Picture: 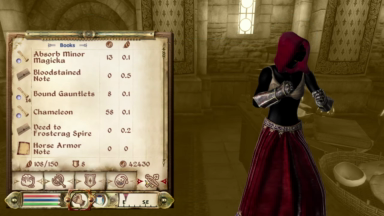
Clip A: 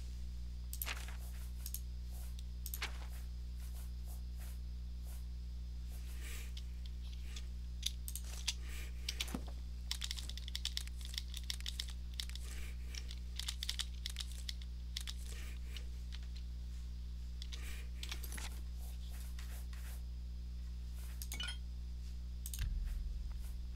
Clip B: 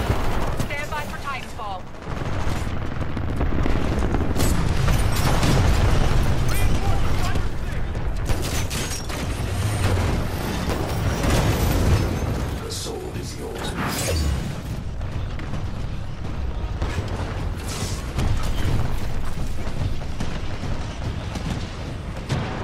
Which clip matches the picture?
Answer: A